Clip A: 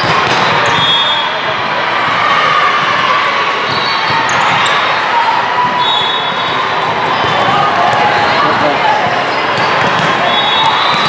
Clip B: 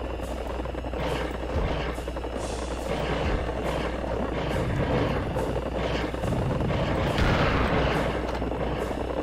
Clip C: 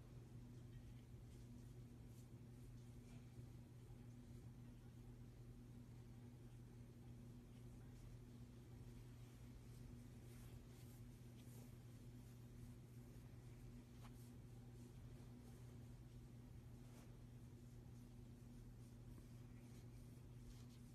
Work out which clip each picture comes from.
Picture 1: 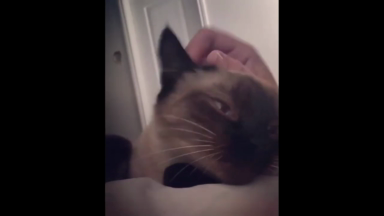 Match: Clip C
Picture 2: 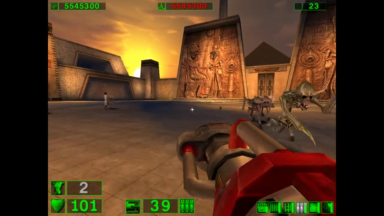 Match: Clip B